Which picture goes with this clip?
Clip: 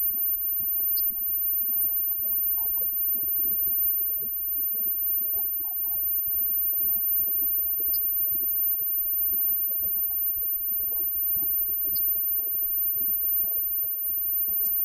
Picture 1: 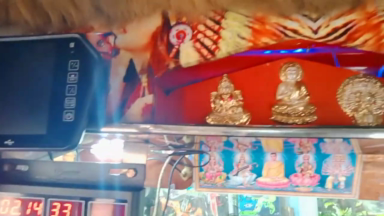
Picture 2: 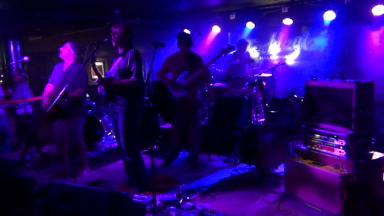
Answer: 2